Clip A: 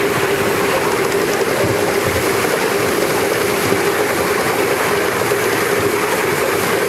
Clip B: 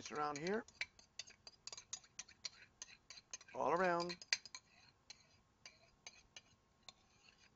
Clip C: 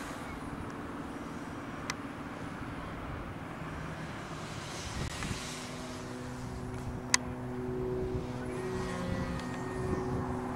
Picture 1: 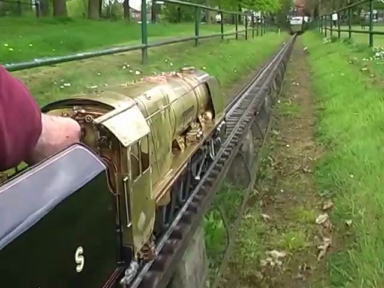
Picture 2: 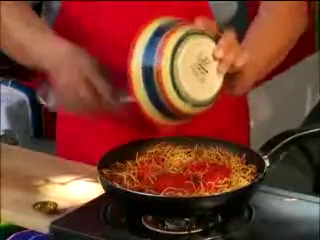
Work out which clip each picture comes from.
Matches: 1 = A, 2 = B